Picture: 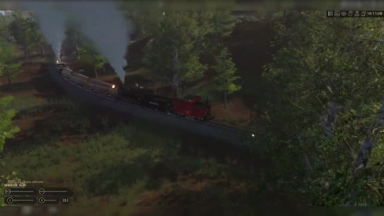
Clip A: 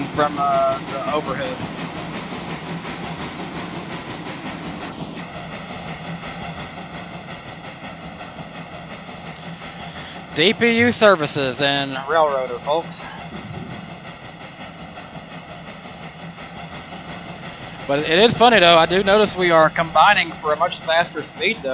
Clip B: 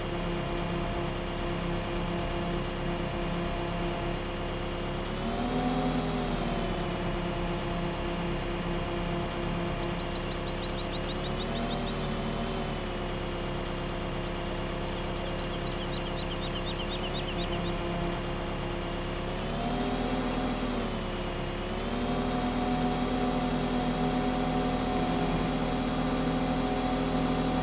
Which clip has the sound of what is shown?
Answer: A